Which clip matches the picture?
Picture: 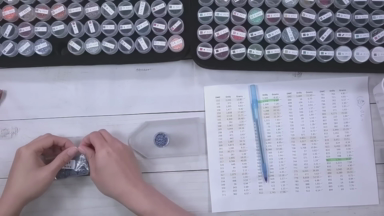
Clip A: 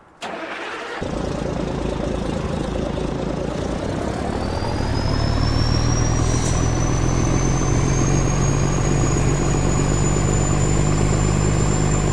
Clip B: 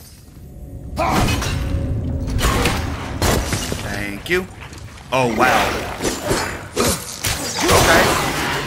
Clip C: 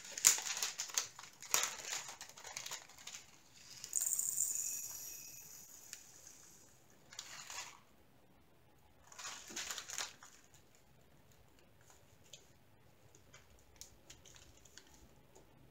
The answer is C